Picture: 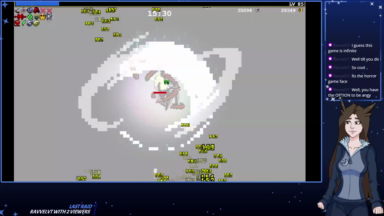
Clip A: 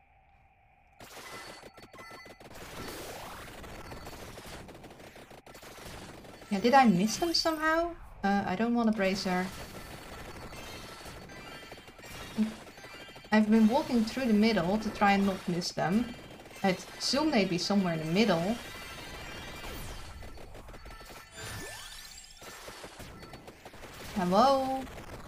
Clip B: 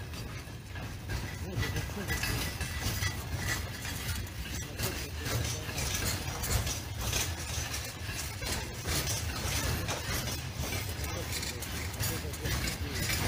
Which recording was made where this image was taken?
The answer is A